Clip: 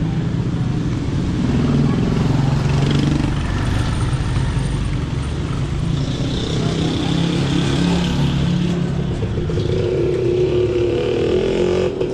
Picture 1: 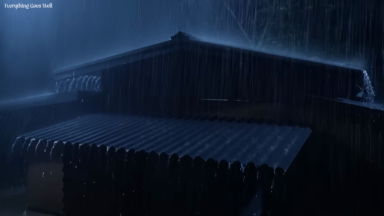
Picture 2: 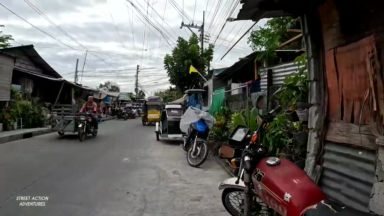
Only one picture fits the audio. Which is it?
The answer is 2